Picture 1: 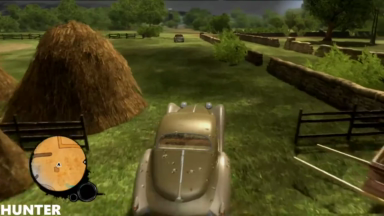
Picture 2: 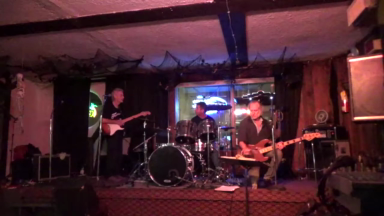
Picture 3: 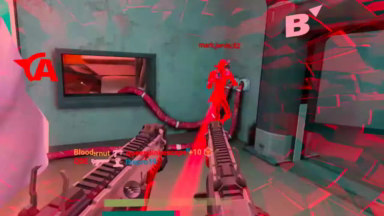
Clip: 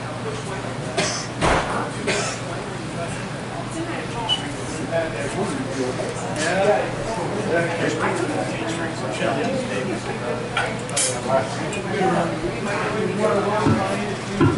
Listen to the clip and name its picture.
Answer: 2